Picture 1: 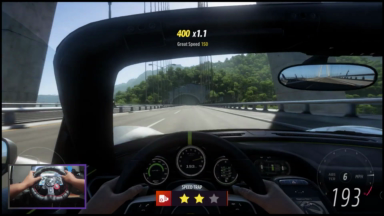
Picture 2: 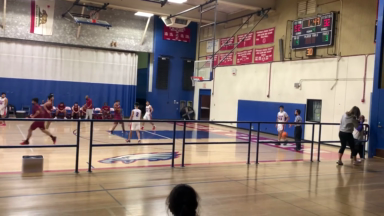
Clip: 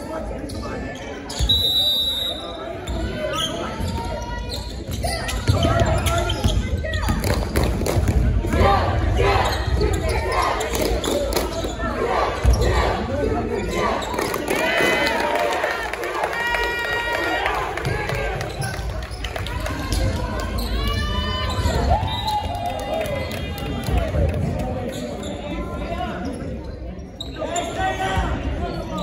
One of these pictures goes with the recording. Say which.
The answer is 2